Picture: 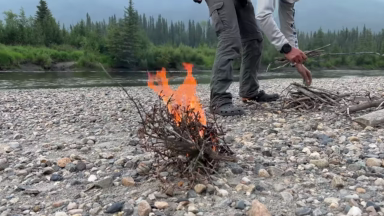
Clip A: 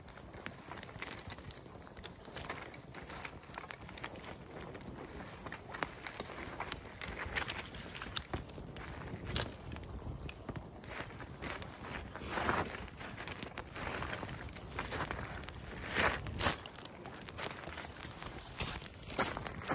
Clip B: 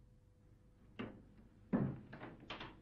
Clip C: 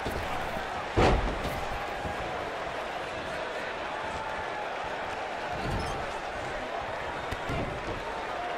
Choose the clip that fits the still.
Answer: A